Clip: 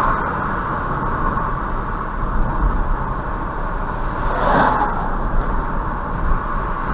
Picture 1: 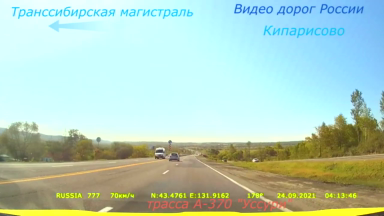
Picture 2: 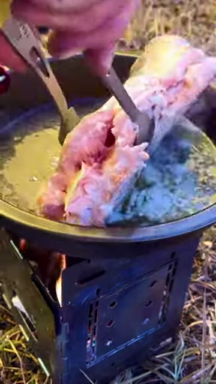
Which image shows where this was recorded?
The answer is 1